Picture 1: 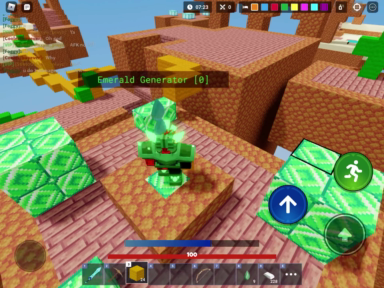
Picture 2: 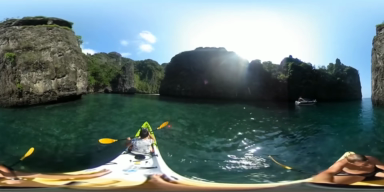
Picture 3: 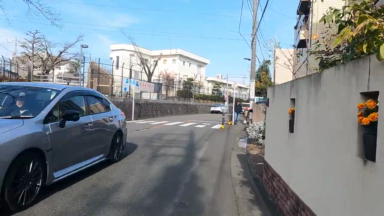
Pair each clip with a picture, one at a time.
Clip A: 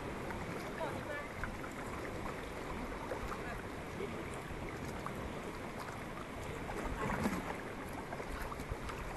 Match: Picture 2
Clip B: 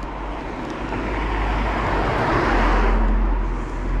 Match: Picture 3